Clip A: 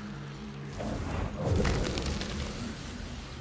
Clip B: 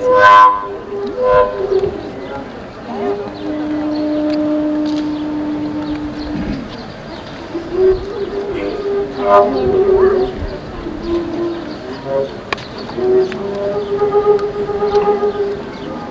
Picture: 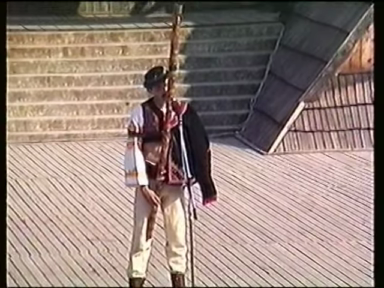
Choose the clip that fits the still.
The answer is B